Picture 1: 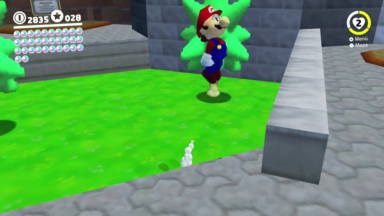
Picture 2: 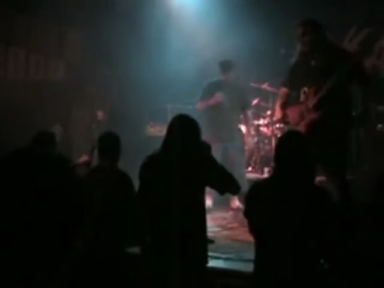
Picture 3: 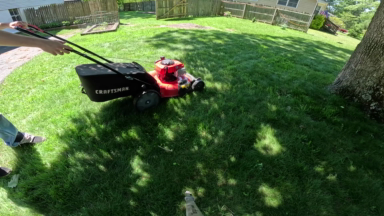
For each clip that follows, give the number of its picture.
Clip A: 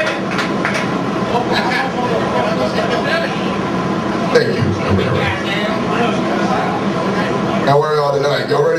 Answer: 2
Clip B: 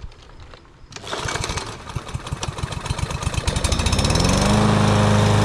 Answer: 3